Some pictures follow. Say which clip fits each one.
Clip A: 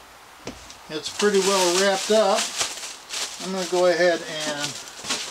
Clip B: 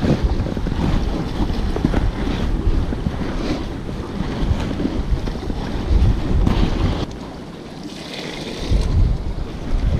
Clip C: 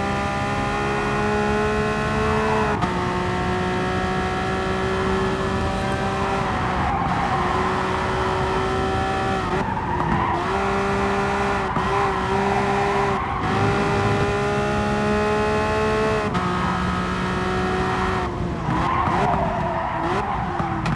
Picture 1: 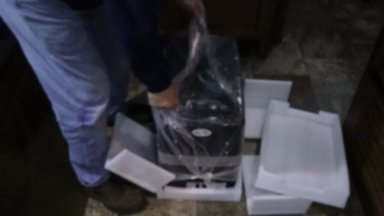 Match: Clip A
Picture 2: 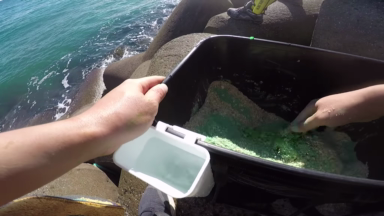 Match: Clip B